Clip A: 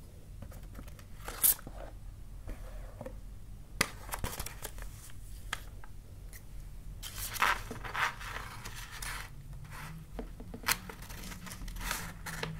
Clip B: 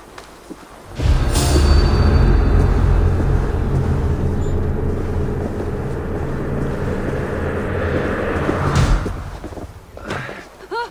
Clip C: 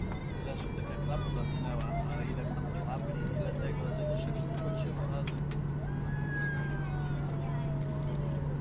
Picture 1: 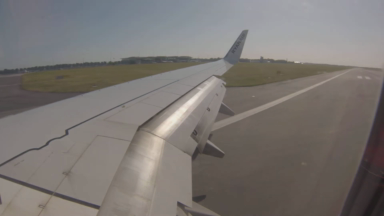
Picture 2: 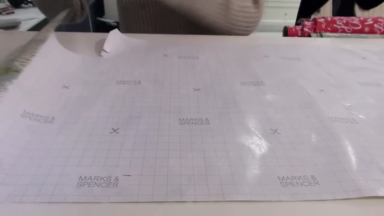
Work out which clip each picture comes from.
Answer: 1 C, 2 A